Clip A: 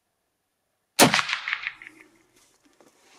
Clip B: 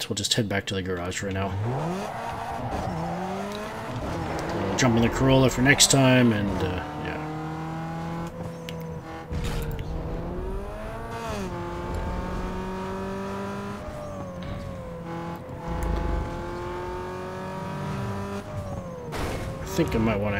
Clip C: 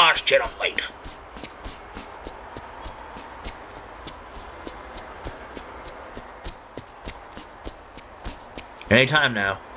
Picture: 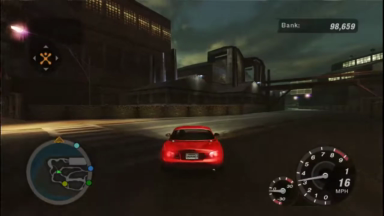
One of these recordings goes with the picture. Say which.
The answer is B